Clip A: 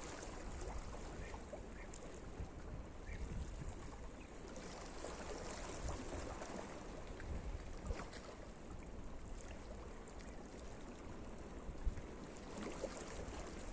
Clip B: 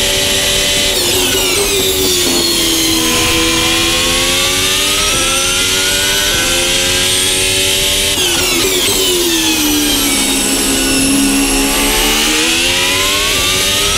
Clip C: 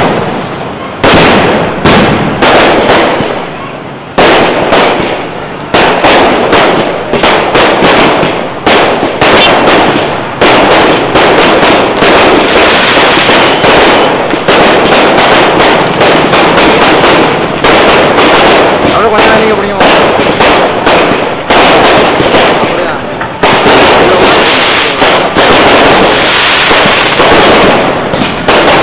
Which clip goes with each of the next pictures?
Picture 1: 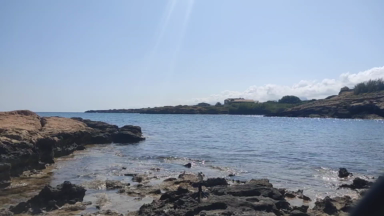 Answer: A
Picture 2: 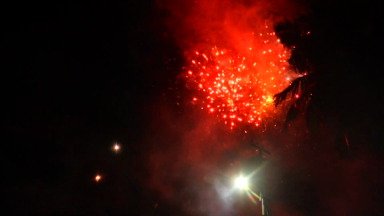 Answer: C